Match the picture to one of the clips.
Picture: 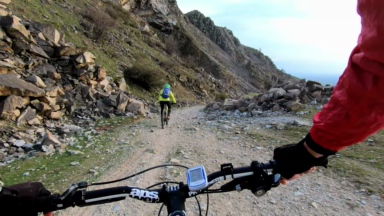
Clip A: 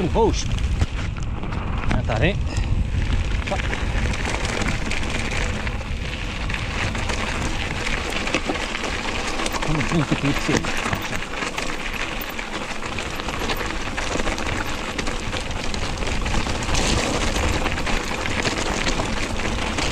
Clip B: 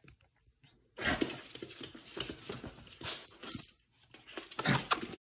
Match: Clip A